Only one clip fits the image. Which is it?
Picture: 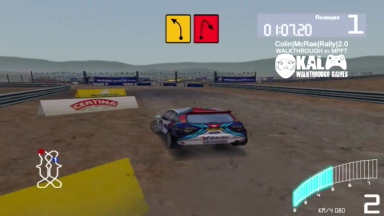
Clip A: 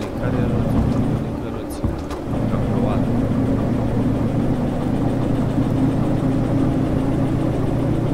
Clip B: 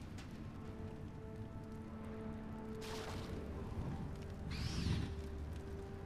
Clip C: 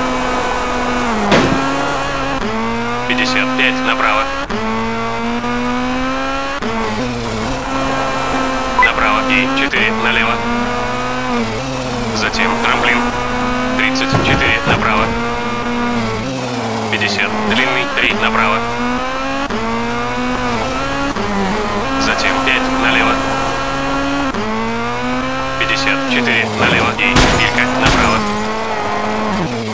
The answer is C